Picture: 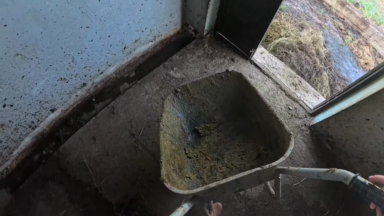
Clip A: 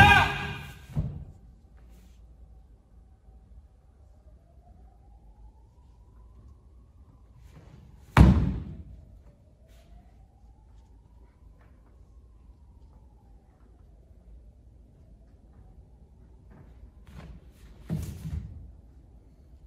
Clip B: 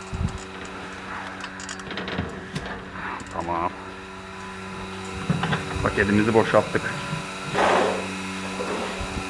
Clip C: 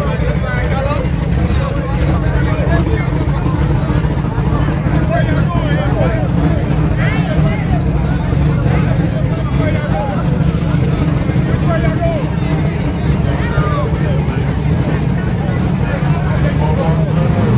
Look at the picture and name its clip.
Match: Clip B